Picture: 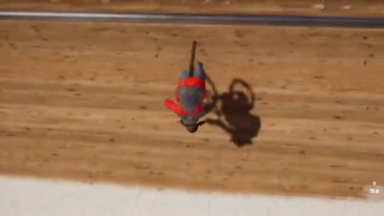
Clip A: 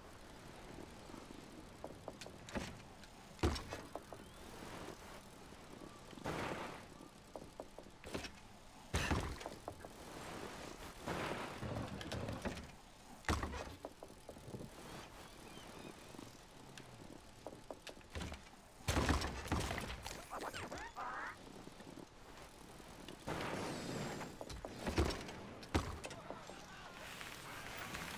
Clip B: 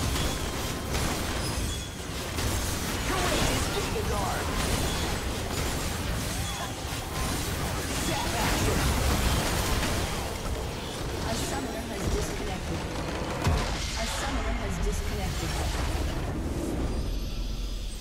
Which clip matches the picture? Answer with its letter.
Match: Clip A